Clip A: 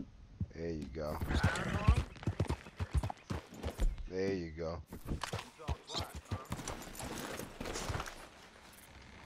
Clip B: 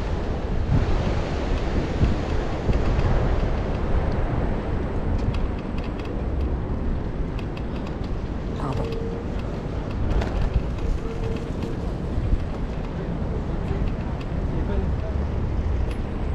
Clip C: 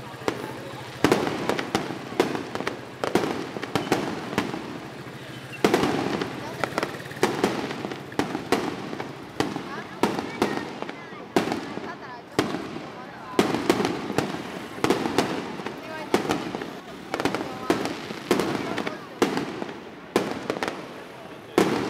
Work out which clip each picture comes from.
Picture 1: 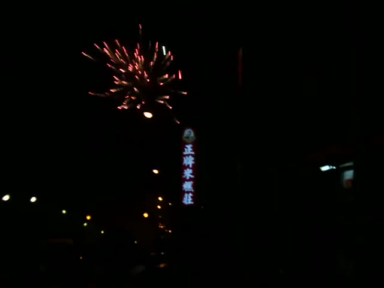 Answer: C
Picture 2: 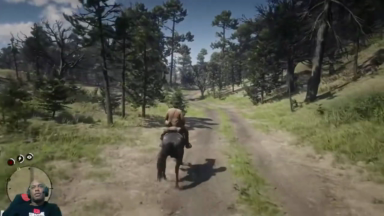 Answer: A